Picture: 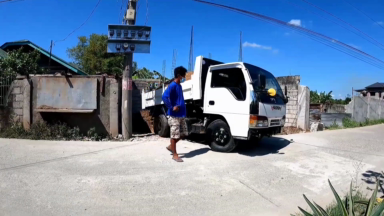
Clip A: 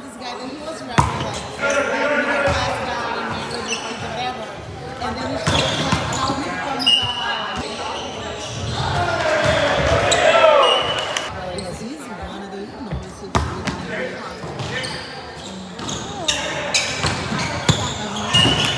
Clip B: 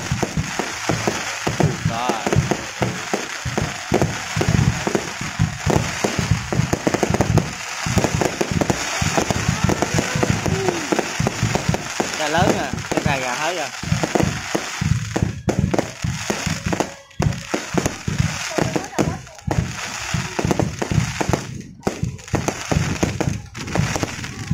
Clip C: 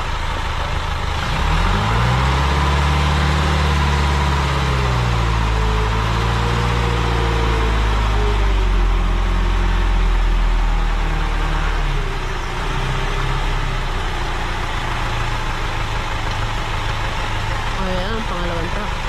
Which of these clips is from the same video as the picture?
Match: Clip C